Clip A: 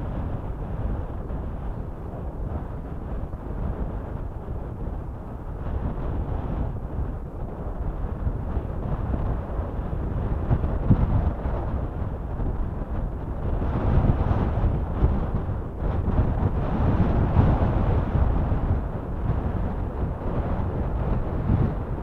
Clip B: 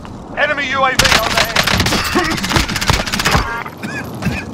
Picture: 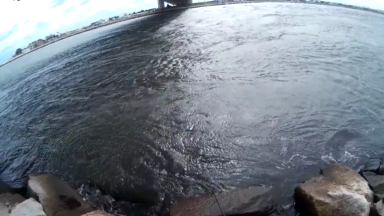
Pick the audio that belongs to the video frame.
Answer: A